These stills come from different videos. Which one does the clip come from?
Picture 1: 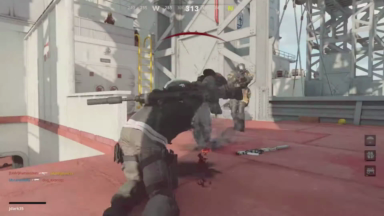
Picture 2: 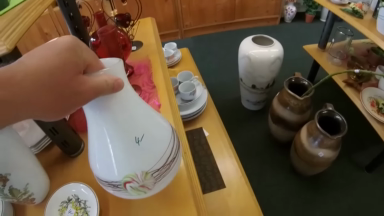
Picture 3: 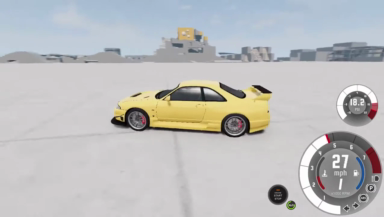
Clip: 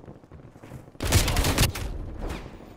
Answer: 1